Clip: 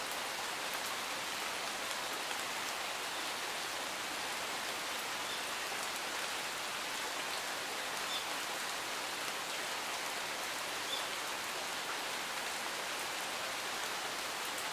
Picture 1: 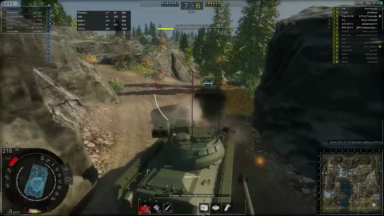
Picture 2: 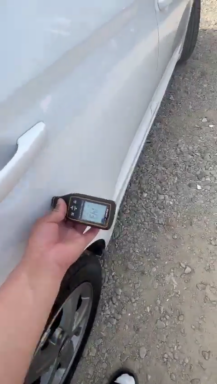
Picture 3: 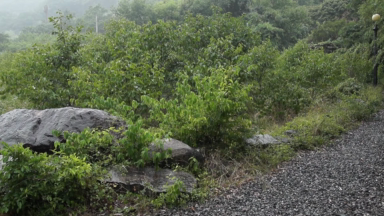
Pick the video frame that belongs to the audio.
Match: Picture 3